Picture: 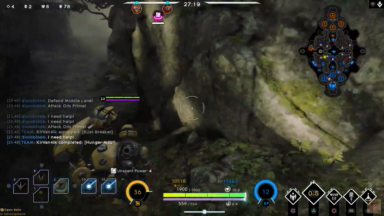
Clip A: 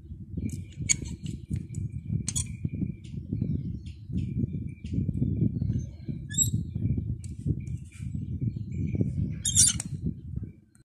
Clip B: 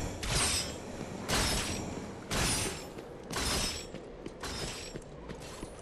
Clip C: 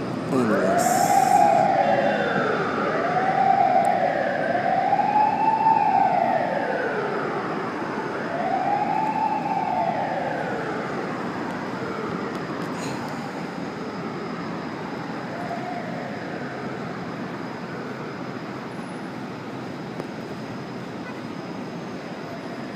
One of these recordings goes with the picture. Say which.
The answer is B